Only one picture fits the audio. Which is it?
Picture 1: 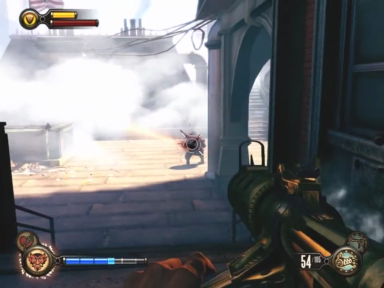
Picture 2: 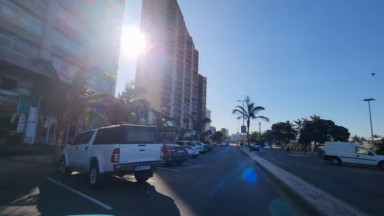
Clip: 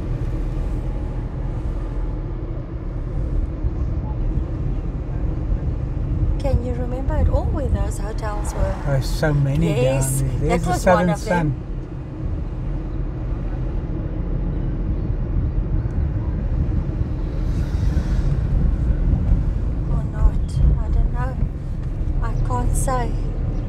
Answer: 2